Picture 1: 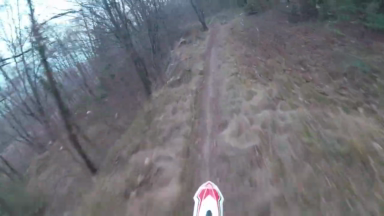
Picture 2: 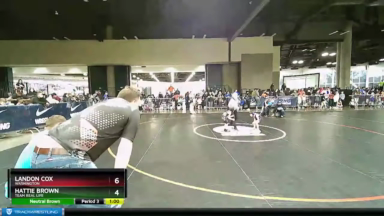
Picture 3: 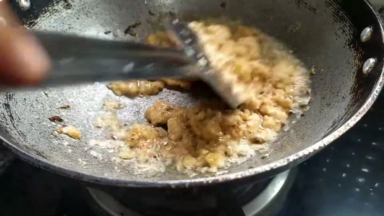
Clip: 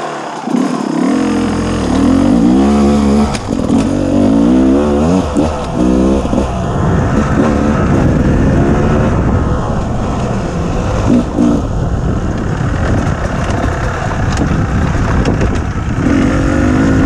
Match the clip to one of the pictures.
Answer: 1